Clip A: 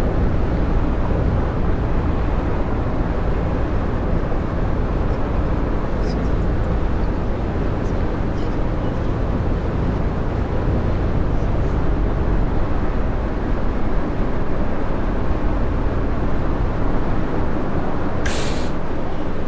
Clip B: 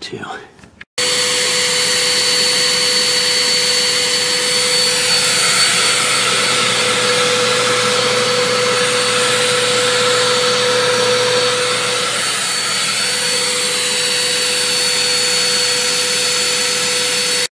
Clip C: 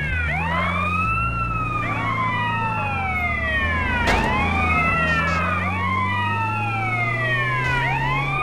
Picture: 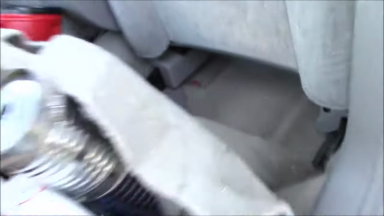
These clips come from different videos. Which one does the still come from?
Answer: B